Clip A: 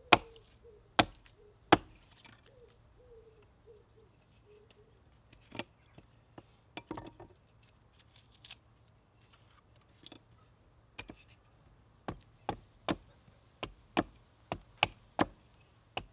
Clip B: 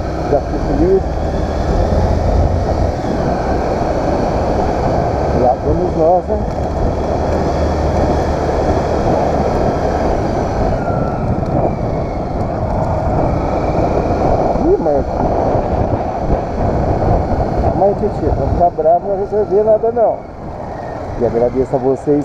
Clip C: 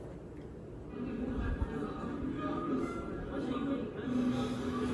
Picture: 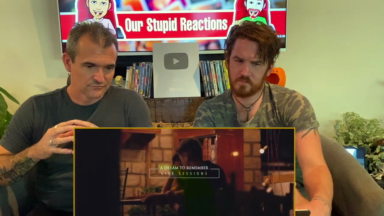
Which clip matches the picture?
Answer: C